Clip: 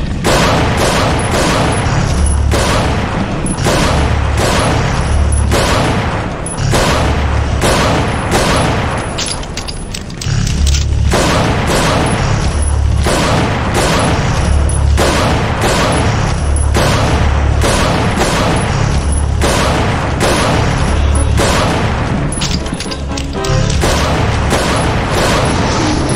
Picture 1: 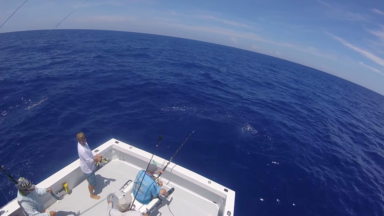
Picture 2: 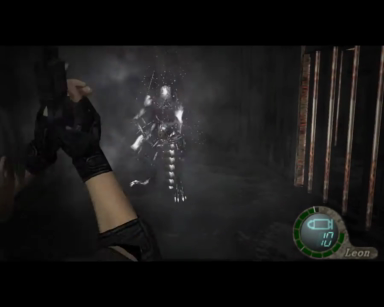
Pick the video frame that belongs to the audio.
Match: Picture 2